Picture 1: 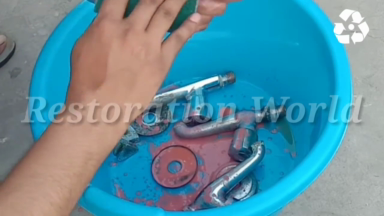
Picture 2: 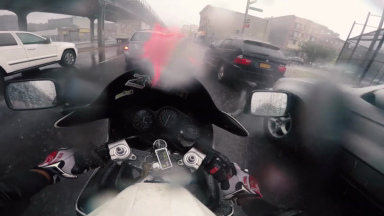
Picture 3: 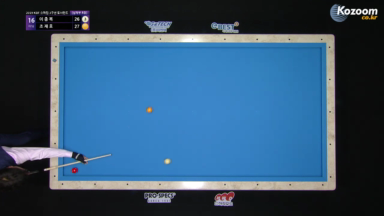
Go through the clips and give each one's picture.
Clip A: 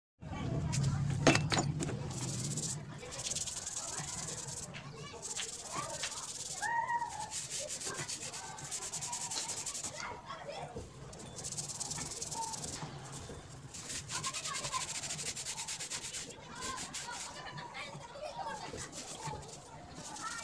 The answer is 1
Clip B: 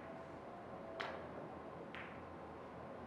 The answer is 3